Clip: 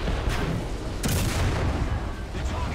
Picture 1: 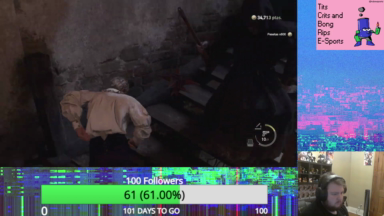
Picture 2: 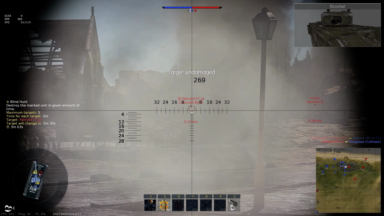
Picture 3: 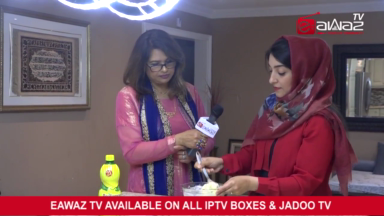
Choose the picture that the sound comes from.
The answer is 2